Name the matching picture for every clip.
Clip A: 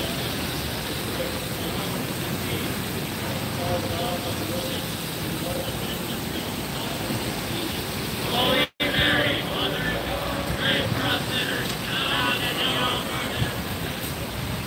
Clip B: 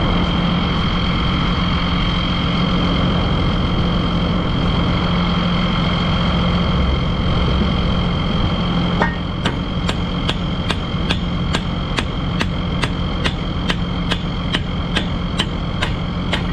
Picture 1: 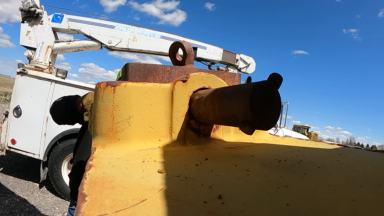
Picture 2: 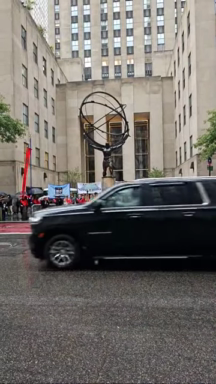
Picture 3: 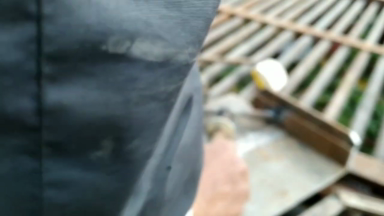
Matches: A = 2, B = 1